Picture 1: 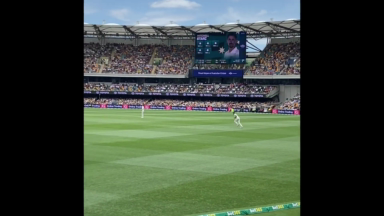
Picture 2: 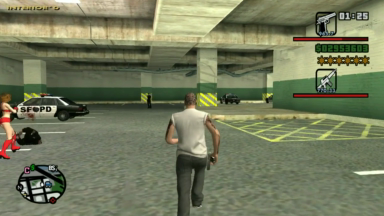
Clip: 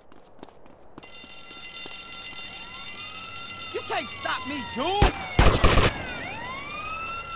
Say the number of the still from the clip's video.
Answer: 2